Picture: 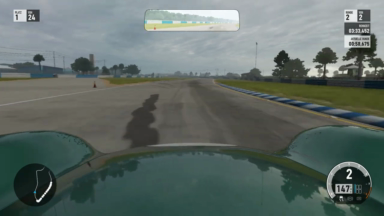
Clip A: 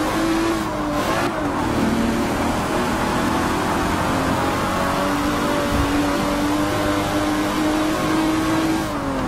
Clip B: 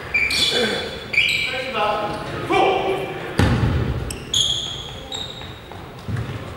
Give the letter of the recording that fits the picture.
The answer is A